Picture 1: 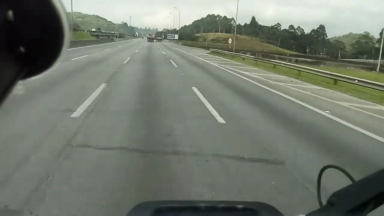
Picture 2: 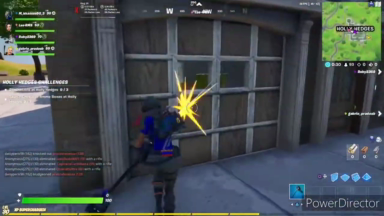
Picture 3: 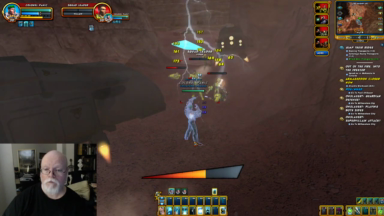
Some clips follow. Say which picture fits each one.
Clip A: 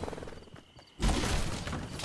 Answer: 2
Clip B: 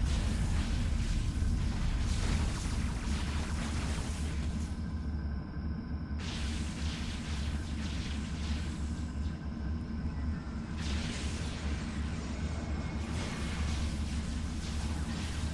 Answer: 3